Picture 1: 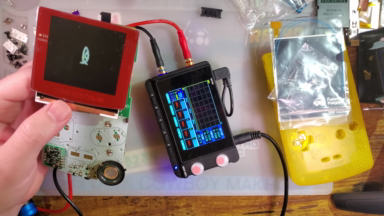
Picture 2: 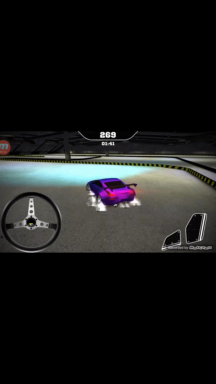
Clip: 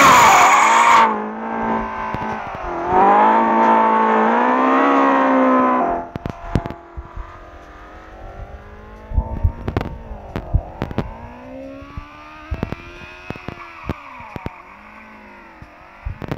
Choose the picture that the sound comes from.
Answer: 2